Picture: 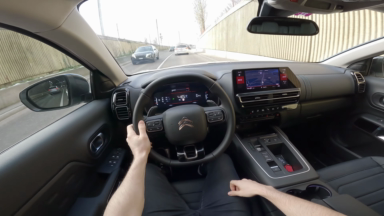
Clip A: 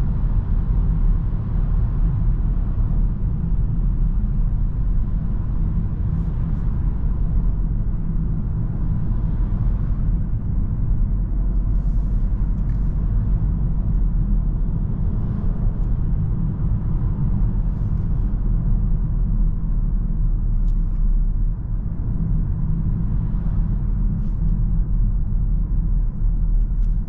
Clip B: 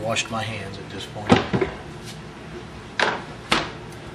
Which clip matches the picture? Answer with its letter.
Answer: A